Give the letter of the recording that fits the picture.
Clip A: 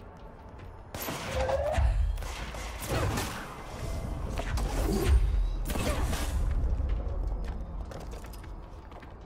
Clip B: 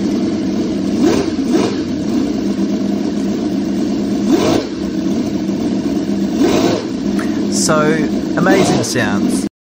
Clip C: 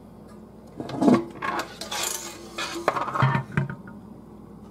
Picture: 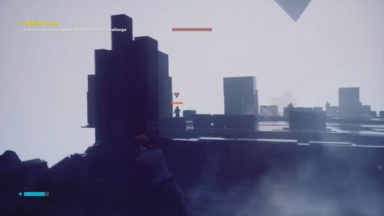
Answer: A